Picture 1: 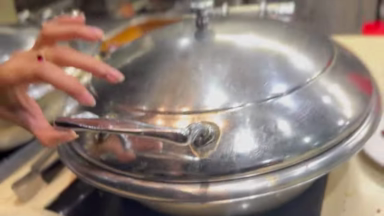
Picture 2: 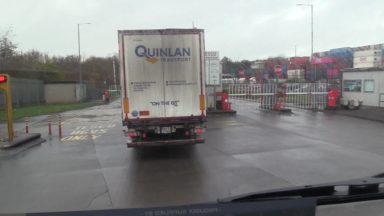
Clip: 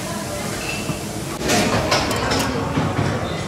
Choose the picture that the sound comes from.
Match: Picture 1